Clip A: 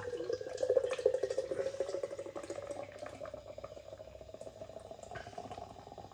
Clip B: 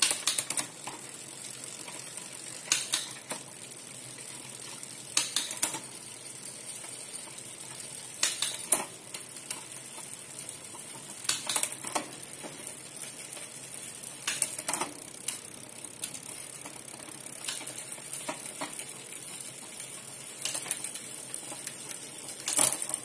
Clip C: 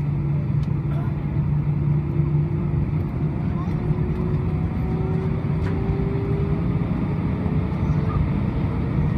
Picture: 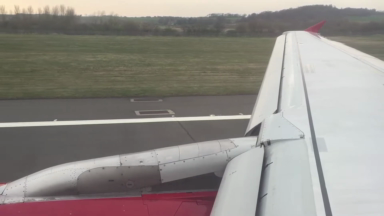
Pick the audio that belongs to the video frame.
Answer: C